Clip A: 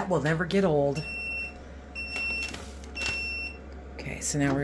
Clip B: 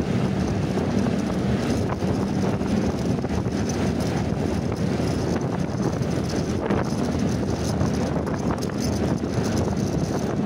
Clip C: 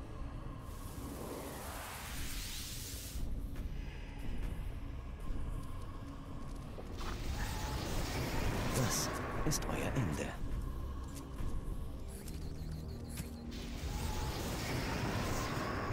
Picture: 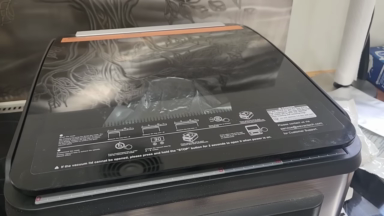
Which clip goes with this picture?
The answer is A